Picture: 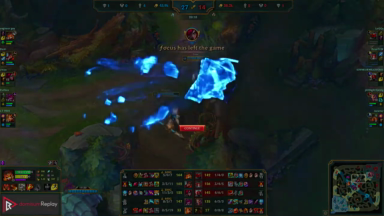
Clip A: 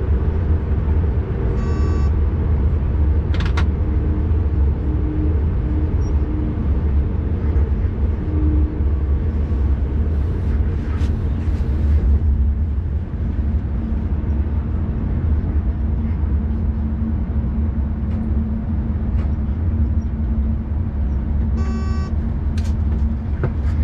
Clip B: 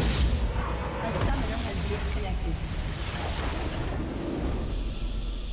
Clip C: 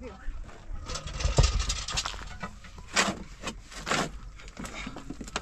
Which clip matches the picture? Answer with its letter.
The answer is B